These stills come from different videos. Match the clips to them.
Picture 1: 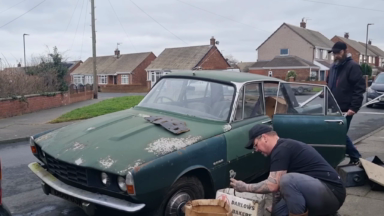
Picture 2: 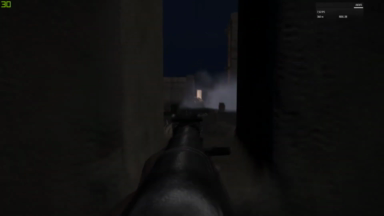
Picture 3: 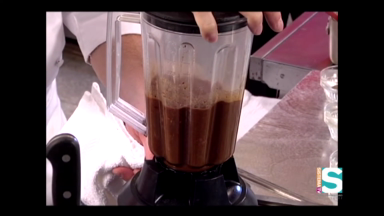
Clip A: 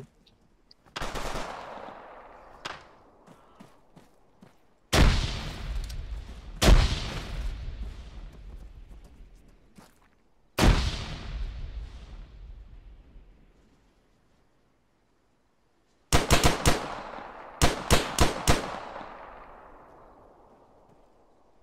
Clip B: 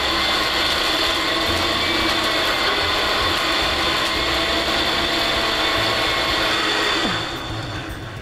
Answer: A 2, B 3